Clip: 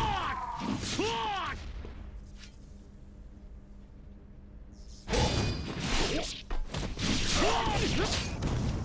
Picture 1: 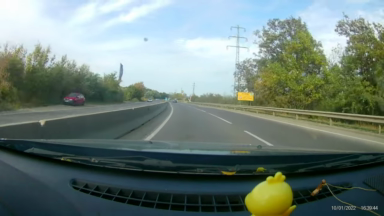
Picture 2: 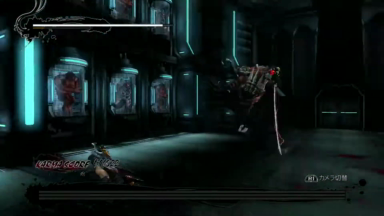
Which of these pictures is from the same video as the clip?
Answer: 2